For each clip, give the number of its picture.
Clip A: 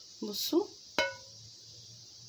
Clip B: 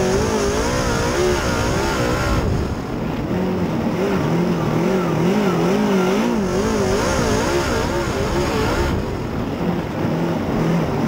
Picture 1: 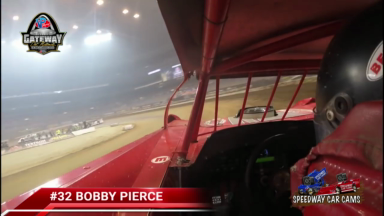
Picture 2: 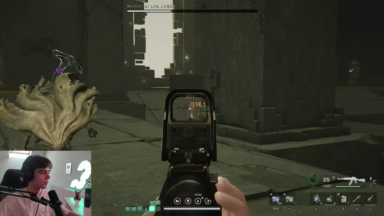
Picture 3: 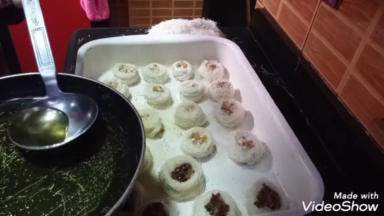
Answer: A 3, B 1